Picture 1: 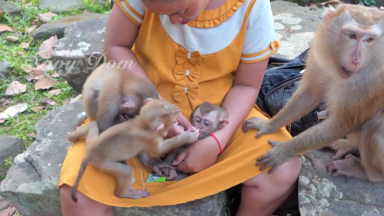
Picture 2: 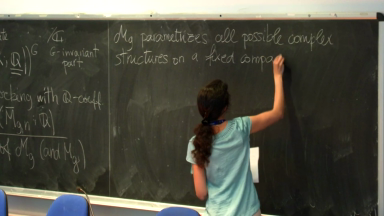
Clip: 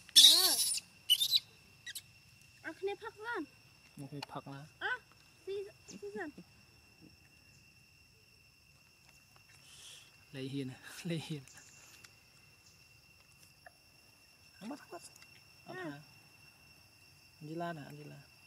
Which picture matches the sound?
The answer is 1